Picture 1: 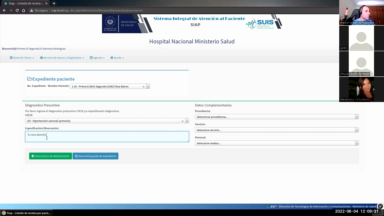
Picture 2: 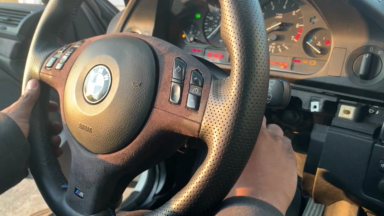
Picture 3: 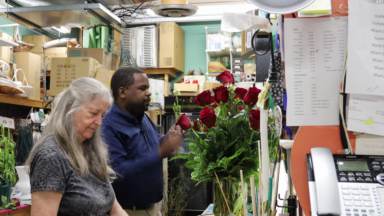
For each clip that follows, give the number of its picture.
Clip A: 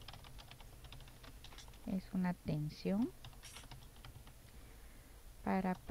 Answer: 1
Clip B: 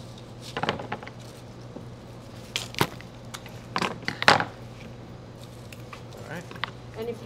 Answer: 3